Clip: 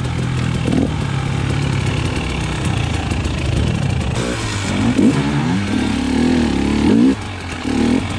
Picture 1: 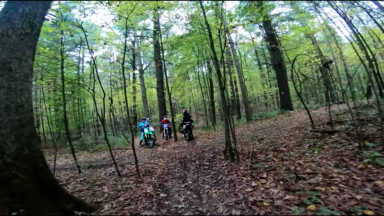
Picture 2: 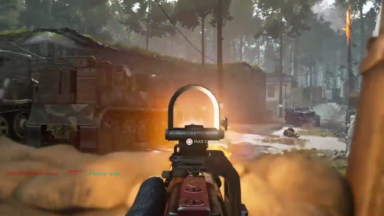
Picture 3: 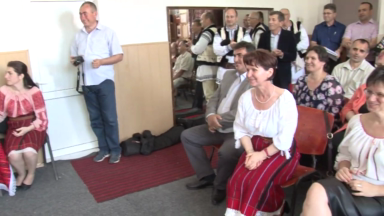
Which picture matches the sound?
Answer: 1